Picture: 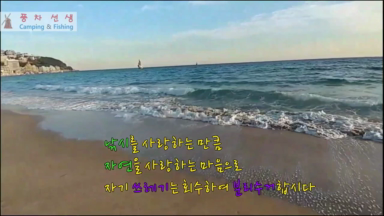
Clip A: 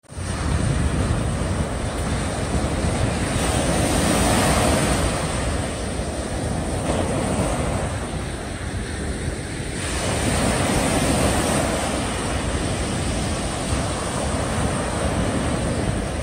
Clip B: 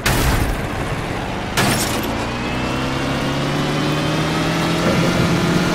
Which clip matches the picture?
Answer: A